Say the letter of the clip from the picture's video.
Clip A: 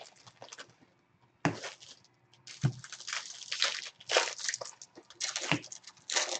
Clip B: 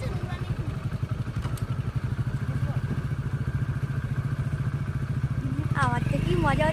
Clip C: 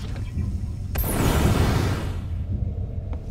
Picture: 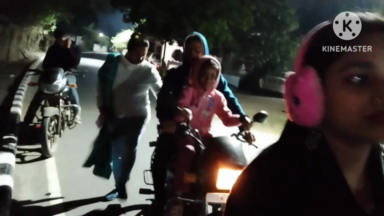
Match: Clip B